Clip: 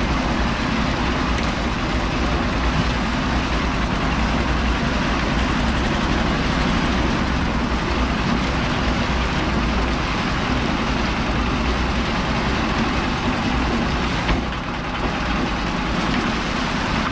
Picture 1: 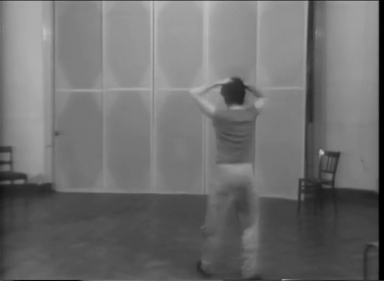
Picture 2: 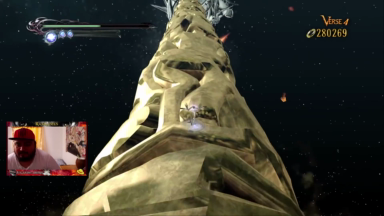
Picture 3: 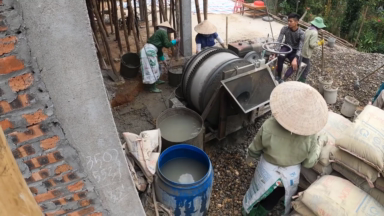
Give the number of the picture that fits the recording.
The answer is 3